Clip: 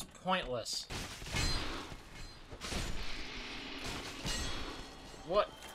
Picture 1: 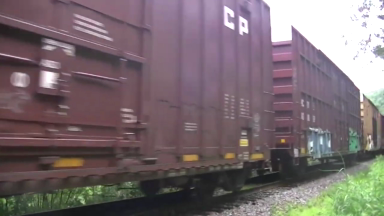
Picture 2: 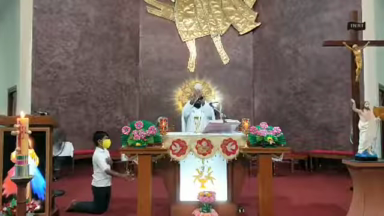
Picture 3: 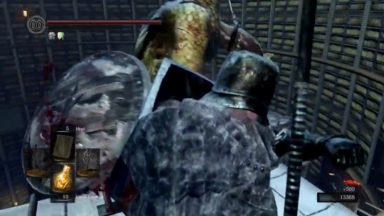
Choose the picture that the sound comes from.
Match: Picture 3